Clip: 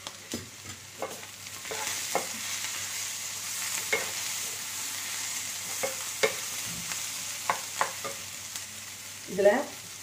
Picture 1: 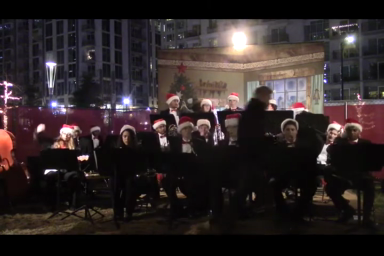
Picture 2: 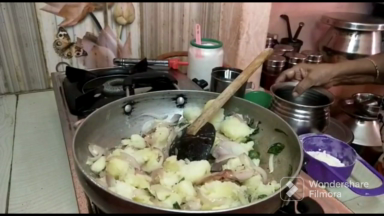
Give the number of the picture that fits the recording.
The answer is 2